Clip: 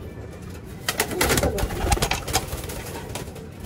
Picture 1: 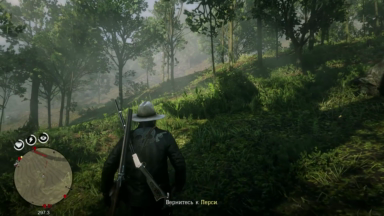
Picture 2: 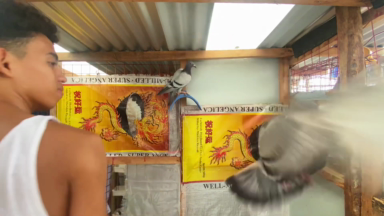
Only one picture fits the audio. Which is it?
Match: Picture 2